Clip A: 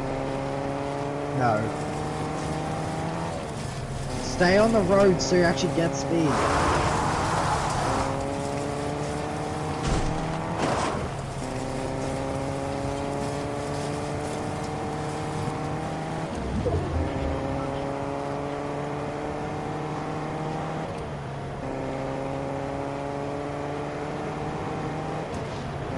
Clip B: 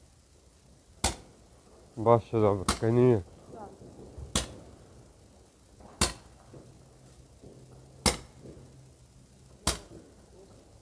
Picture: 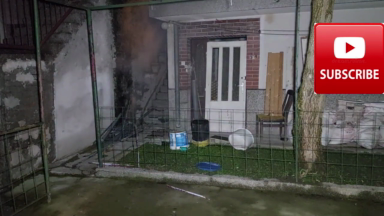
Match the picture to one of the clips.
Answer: B